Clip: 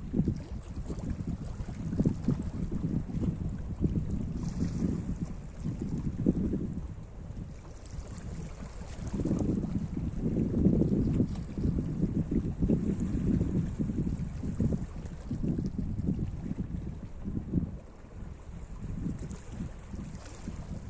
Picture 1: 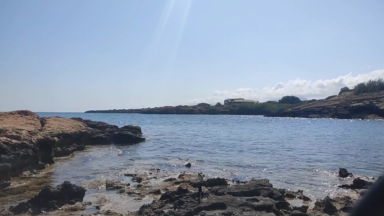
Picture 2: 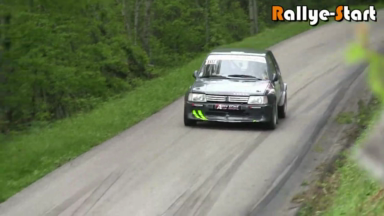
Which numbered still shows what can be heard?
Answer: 1